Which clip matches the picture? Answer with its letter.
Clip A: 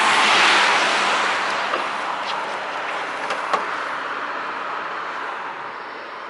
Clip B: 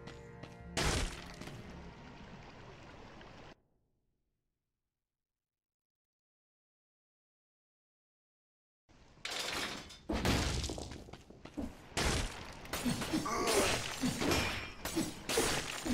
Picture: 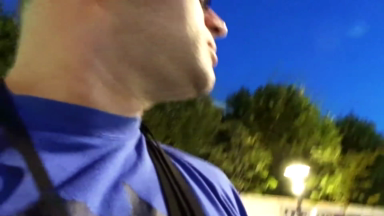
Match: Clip A